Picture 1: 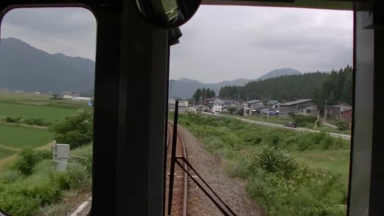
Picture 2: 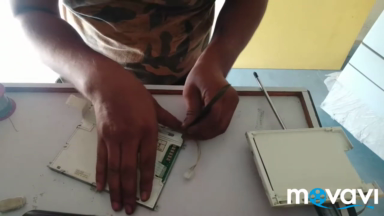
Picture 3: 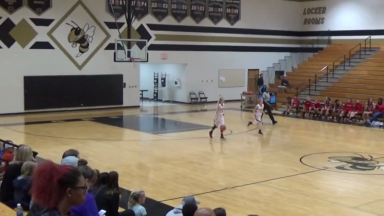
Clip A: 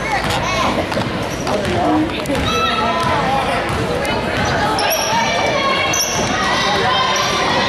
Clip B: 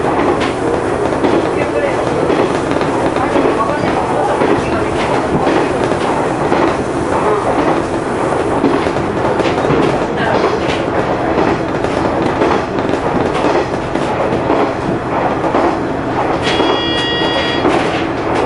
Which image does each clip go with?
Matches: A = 3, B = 1